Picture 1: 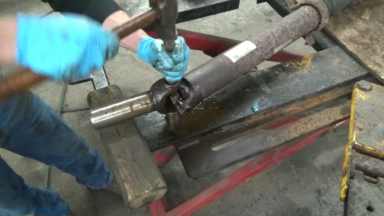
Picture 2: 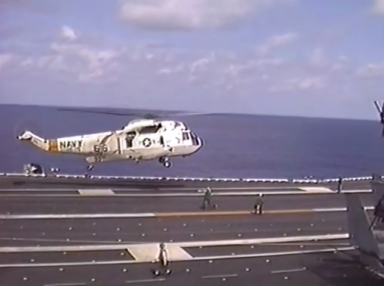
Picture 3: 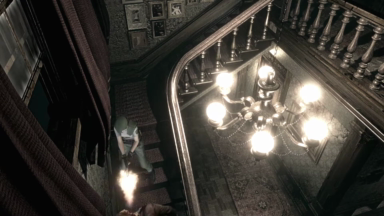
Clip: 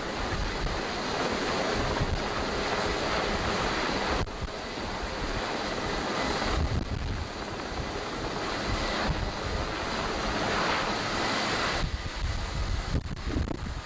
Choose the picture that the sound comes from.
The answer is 2